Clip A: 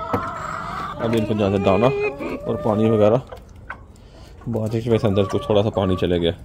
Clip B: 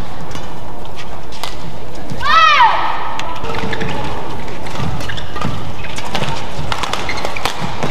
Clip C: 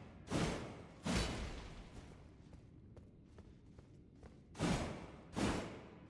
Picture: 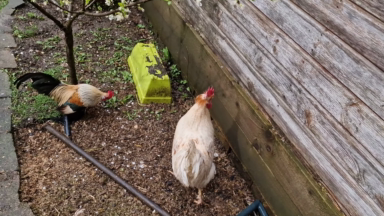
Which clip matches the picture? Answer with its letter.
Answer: A